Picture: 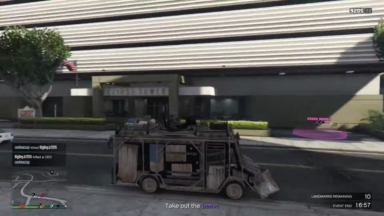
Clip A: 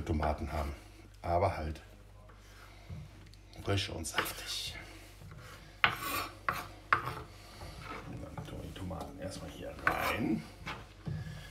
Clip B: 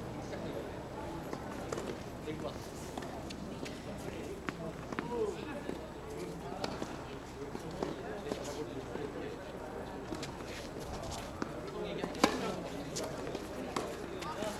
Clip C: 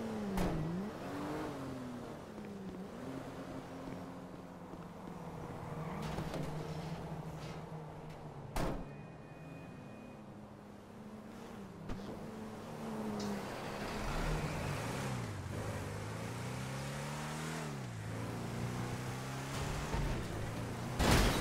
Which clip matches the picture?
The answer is C